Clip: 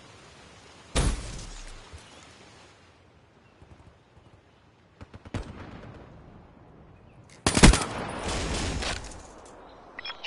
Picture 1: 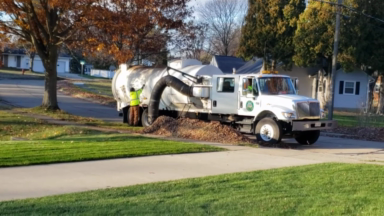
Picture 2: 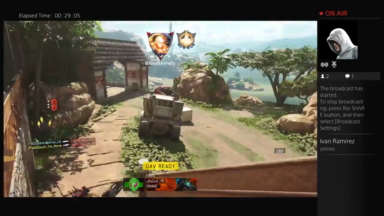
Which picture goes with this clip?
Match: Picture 2